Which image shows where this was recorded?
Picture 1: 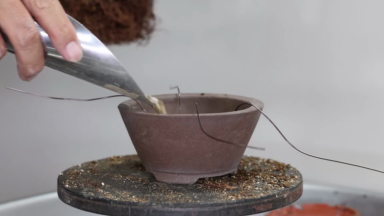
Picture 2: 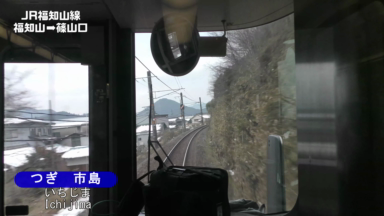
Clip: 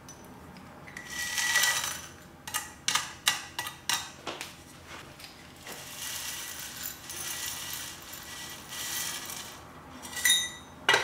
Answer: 1